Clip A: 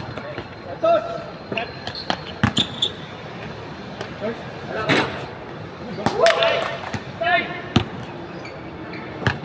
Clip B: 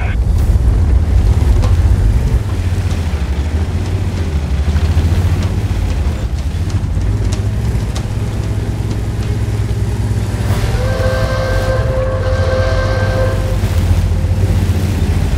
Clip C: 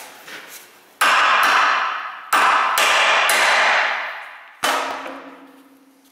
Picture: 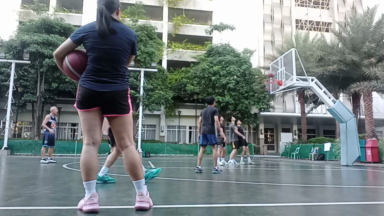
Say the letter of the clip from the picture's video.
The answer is A